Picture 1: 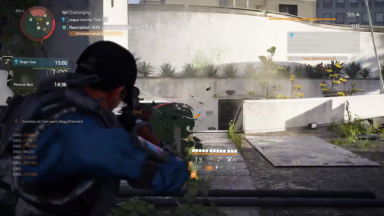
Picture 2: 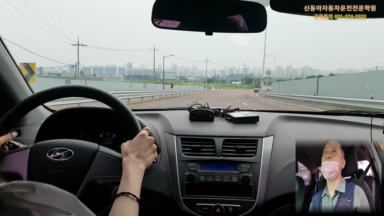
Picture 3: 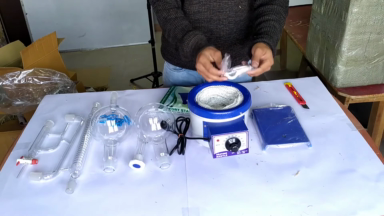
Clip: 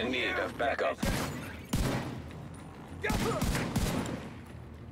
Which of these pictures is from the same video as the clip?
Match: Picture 1